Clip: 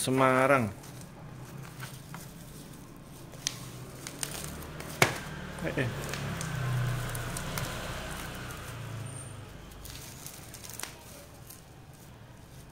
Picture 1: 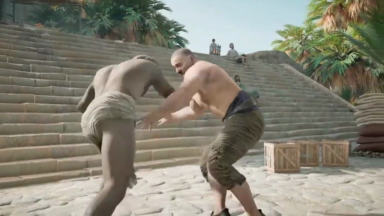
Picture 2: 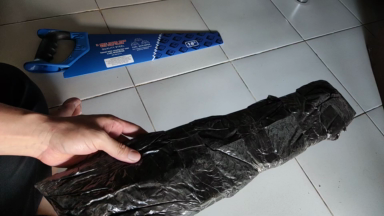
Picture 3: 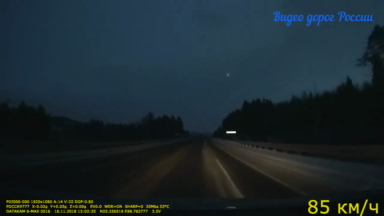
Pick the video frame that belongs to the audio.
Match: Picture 2